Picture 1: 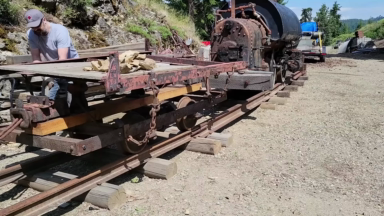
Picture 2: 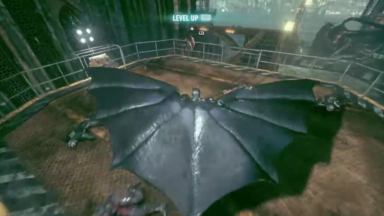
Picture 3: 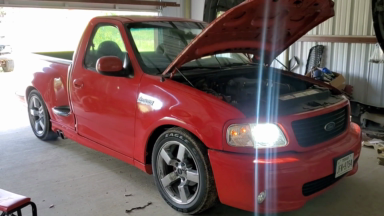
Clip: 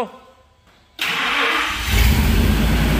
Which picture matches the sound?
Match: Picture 3